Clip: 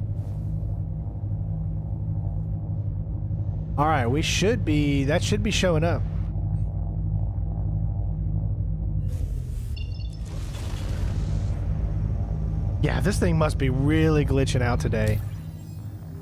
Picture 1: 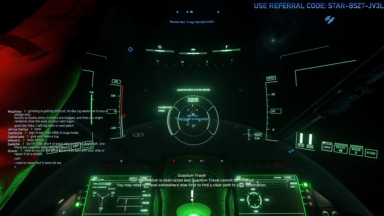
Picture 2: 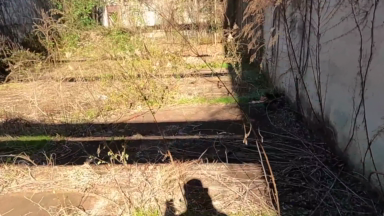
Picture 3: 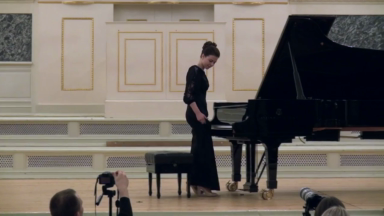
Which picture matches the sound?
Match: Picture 1